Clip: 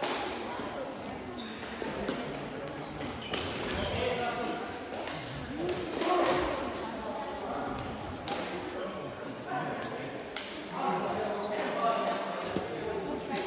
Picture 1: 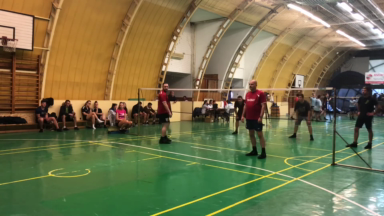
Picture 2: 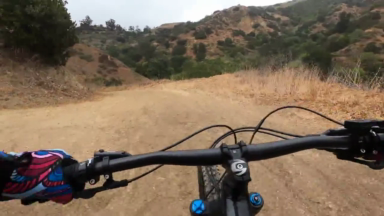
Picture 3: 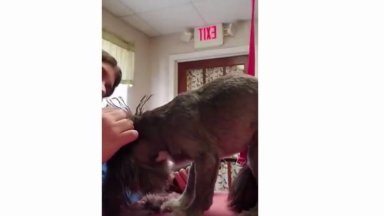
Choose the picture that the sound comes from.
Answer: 1